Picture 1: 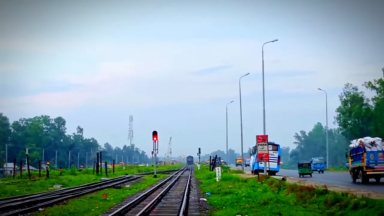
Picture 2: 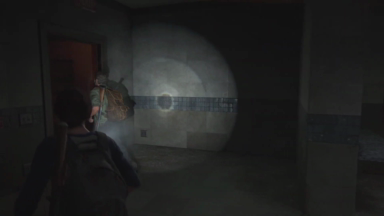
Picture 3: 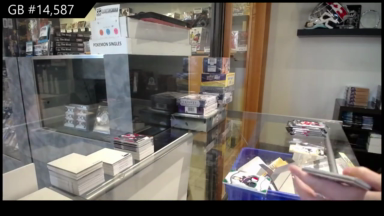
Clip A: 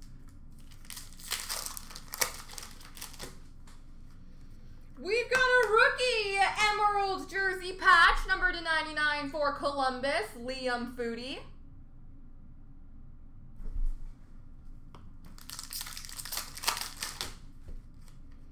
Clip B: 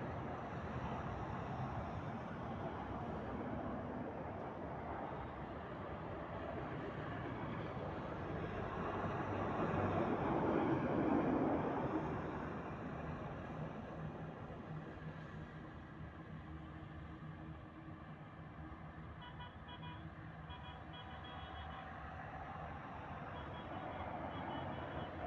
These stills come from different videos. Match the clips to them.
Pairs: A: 3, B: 1